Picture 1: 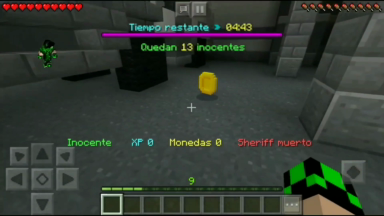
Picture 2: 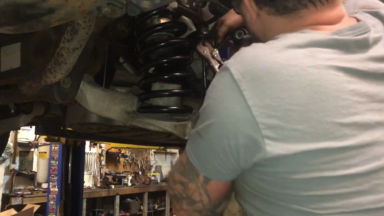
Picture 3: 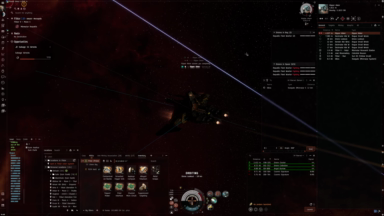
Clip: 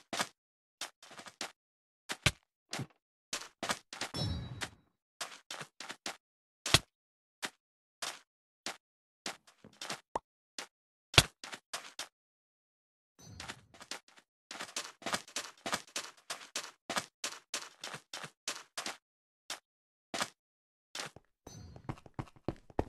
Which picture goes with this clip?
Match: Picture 1